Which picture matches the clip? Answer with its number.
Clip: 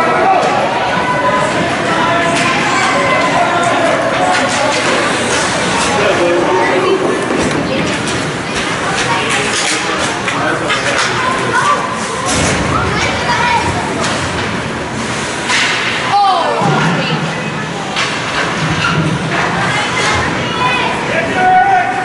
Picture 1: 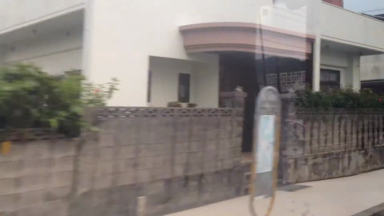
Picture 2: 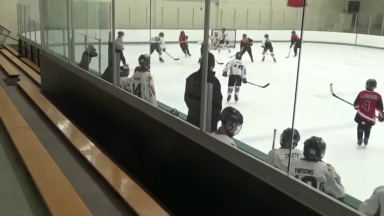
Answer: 2